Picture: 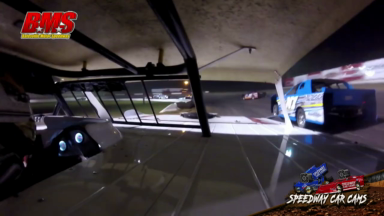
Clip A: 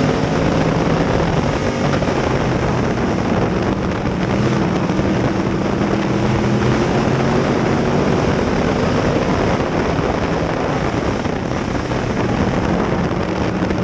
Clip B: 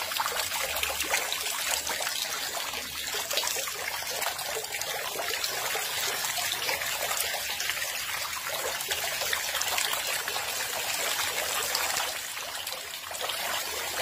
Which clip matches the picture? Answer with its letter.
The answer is A